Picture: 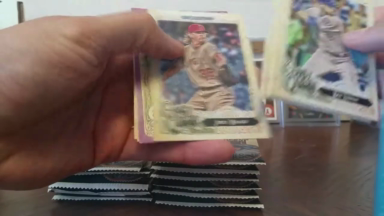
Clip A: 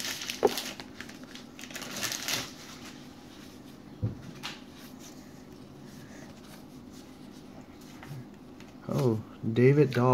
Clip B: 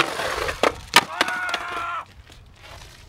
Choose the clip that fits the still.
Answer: A